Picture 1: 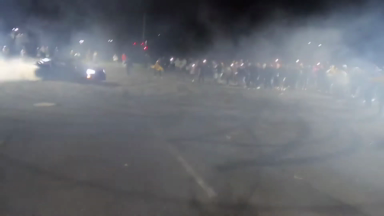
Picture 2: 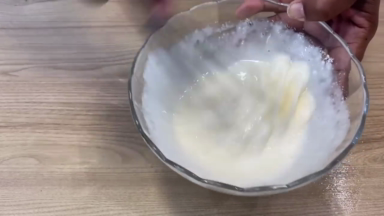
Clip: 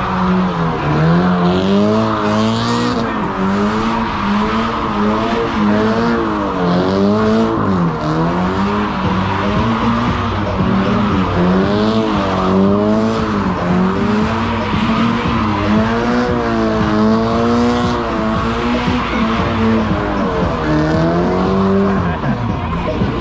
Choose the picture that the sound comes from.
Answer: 1